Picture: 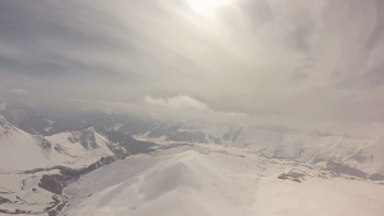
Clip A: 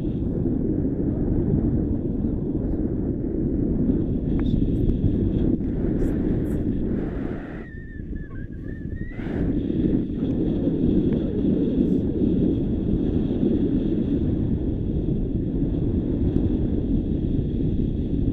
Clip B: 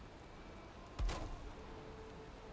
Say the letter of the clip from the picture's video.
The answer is A